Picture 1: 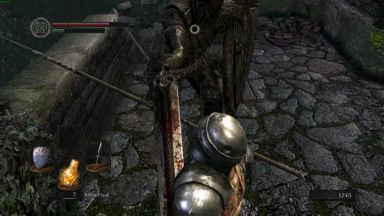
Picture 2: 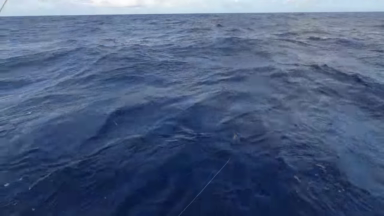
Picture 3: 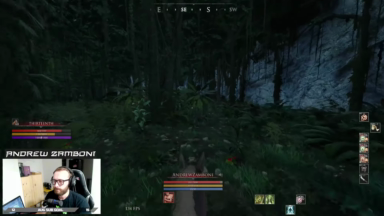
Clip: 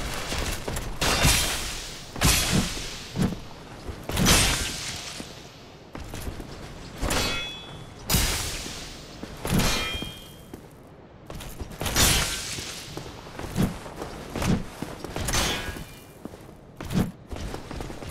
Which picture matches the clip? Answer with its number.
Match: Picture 1